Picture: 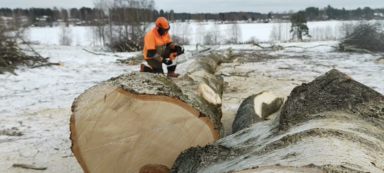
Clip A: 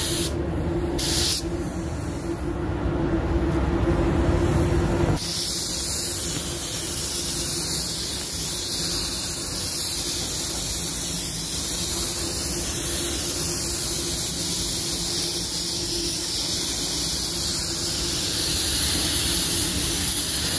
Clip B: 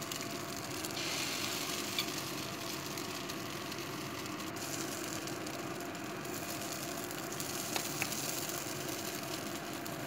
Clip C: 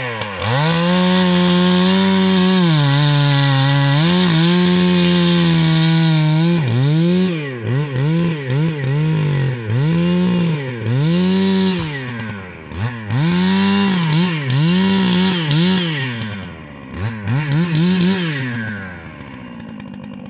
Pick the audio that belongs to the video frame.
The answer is C